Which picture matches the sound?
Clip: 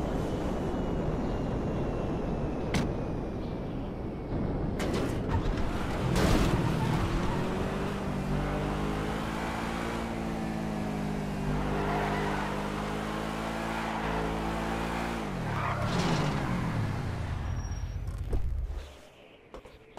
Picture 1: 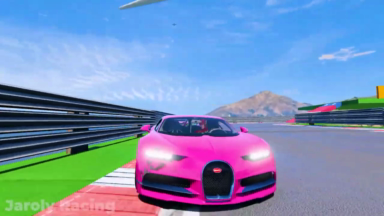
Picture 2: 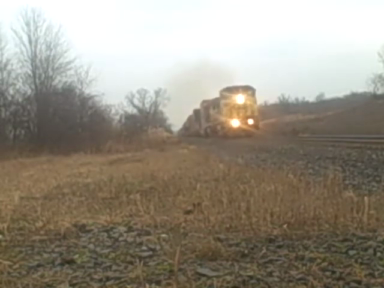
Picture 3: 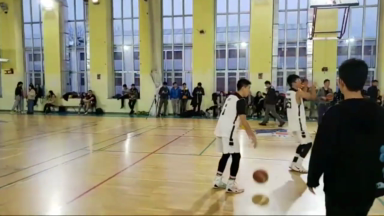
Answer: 1